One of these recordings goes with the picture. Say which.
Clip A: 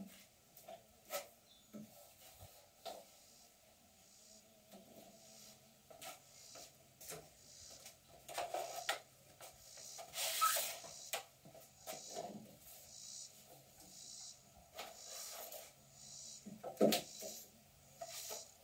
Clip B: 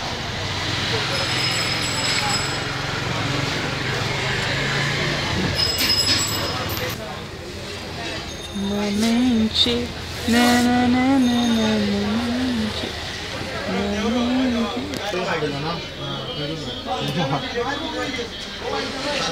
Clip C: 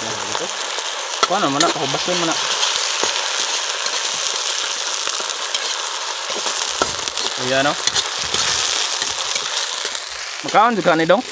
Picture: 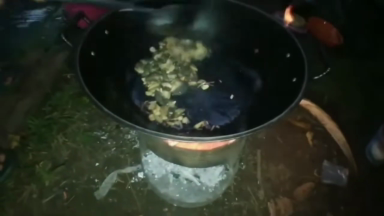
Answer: C